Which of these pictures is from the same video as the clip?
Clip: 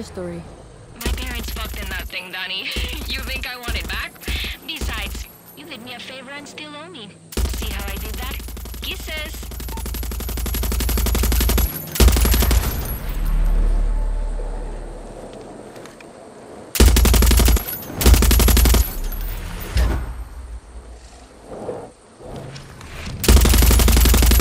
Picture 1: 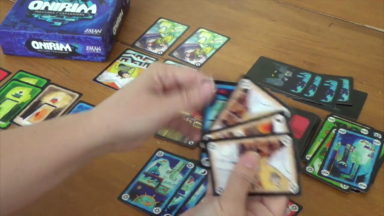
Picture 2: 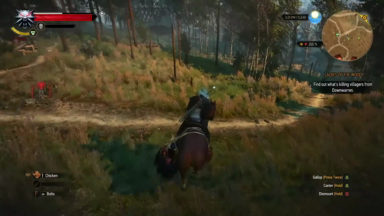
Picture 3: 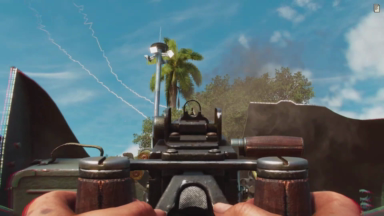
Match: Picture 3